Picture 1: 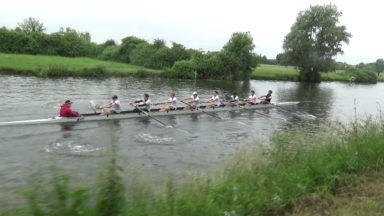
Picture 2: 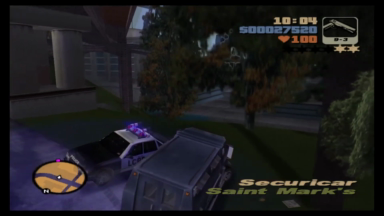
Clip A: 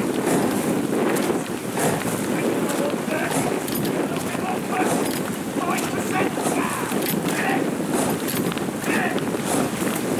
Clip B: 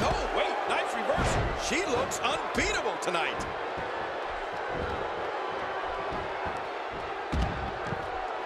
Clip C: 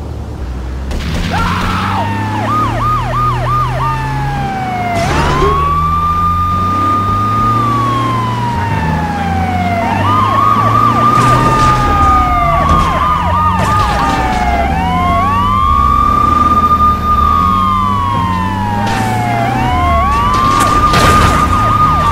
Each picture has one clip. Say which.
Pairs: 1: A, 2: C